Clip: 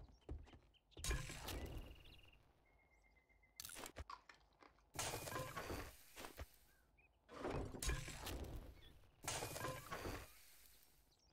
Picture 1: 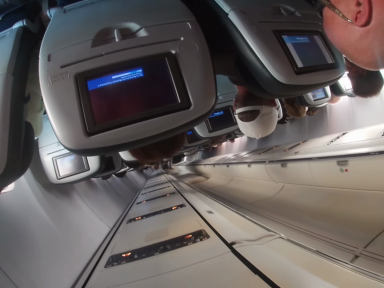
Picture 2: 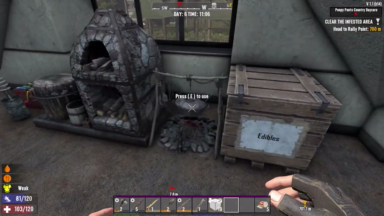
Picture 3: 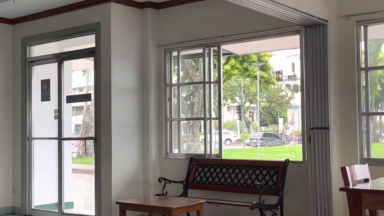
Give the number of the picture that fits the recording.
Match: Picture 2